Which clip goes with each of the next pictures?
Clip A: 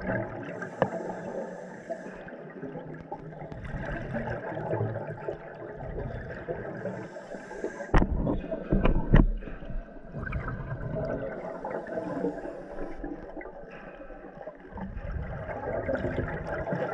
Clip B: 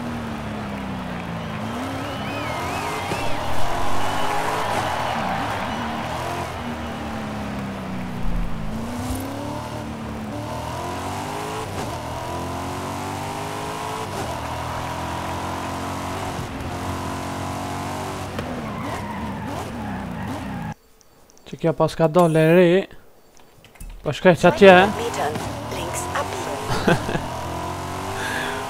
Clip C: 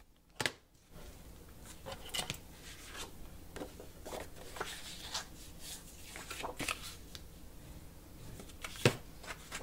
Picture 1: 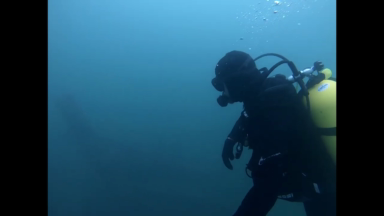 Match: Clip A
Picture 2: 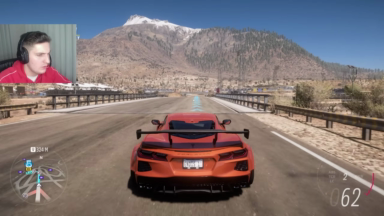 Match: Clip B